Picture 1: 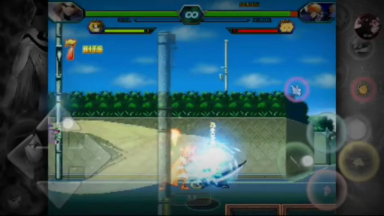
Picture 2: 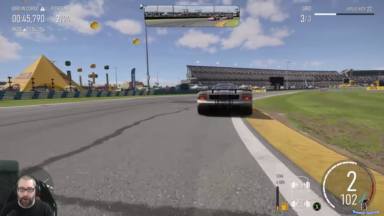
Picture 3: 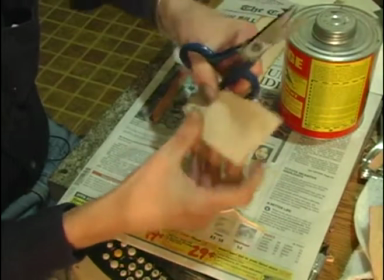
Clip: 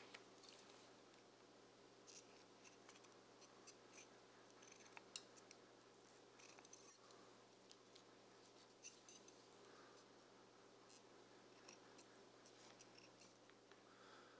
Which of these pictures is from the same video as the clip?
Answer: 3